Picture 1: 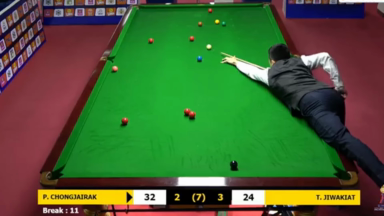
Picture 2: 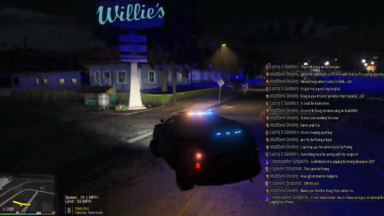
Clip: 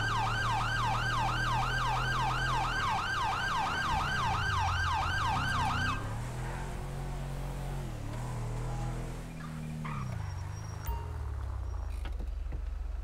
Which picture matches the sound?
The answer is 2